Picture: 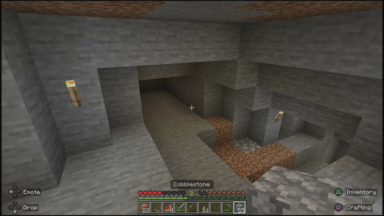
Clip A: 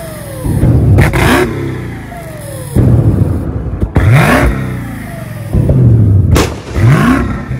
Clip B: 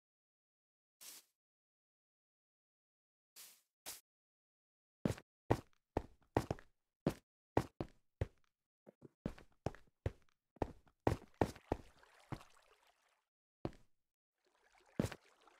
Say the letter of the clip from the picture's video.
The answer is B